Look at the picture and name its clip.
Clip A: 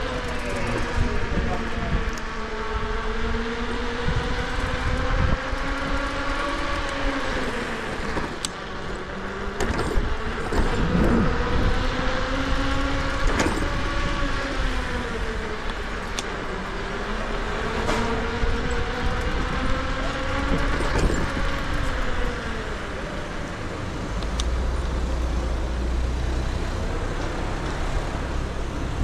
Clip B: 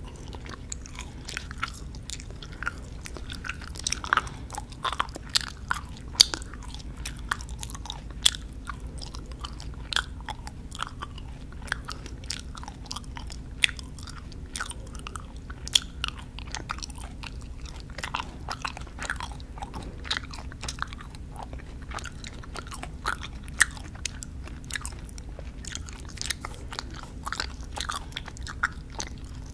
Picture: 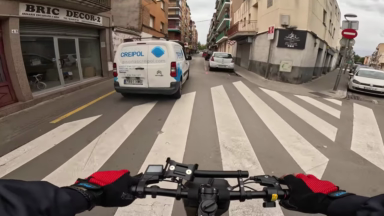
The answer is A